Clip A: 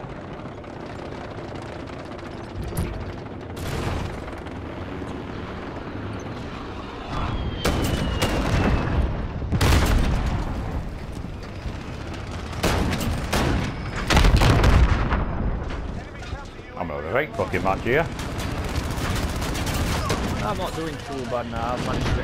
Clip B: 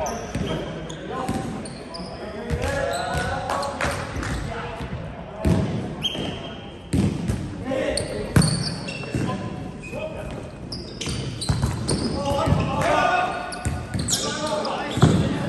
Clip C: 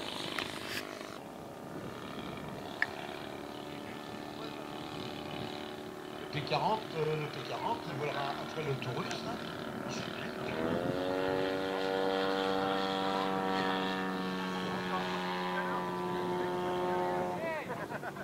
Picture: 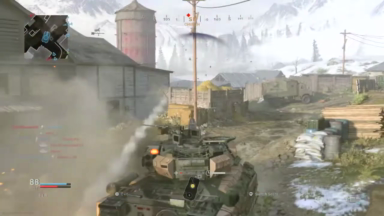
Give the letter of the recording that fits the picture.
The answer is A